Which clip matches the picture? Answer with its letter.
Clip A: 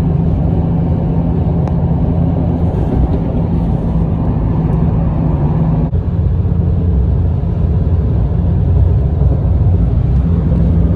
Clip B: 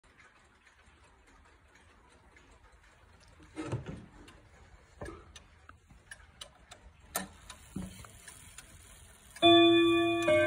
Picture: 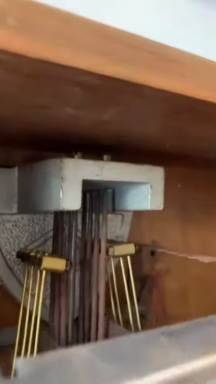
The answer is B